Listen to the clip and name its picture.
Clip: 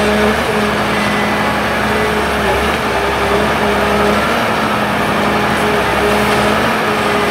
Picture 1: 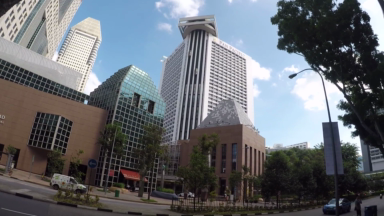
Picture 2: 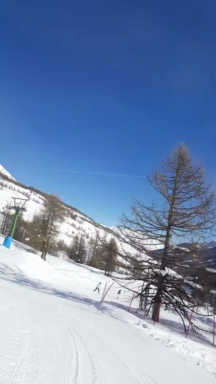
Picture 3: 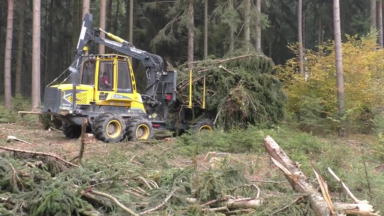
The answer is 3